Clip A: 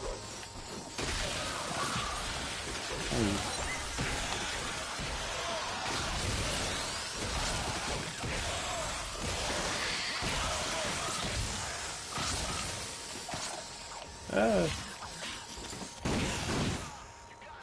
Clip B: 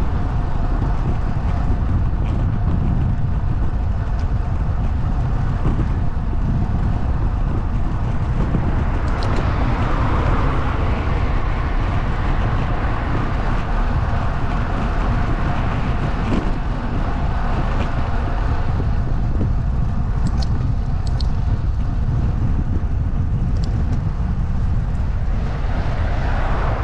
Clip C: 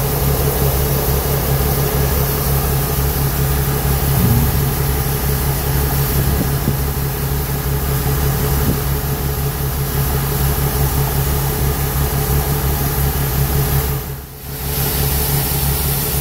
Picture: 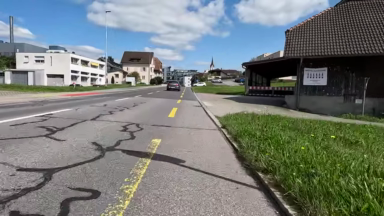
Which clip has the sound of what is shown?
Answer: B